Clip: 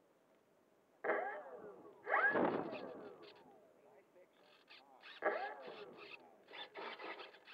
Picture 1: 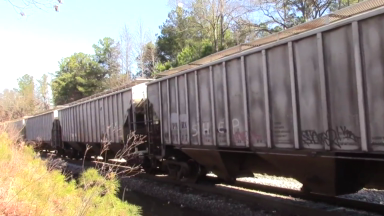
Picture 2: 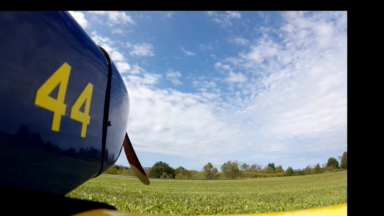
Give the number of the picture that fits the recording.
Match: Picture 2